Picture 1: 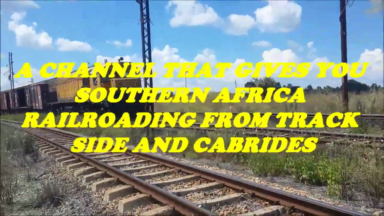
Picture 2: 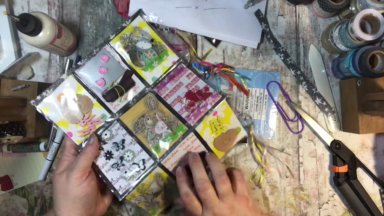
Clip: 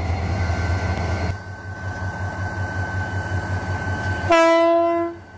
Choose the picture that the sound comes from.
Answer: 1